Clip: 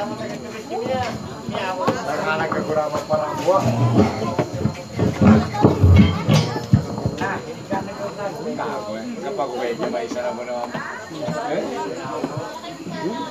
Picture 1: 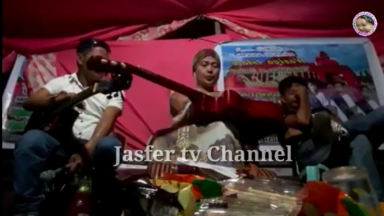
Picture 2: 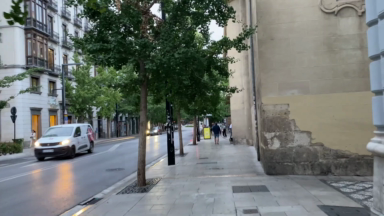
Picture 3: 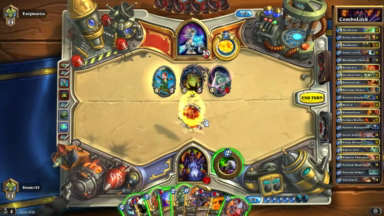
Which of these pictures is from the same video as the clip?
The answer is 1